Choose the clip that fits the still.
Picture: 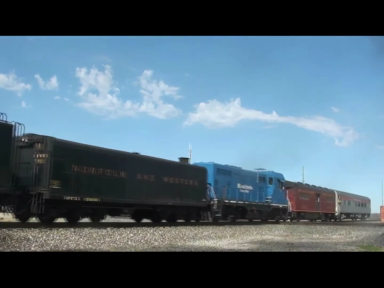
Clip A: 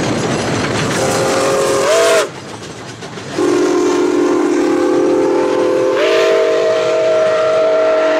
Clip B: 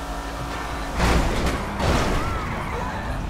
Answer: A